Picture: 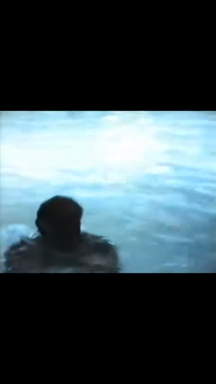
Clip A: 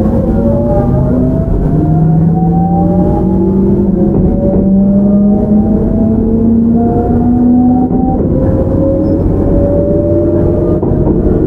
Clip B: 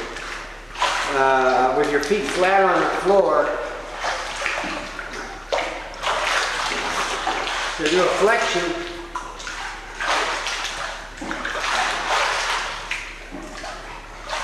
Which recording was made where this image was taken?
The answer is B